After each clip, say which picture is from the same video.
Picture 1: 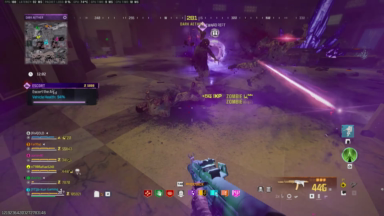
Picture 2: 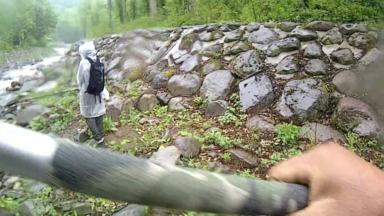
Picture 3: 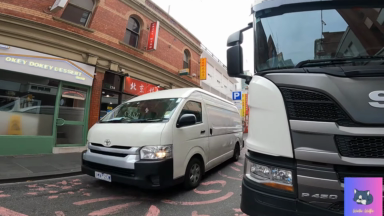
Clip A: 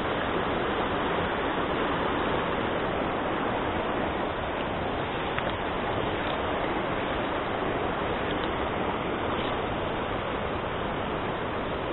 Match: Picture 2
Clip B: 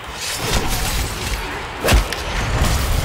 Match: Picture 1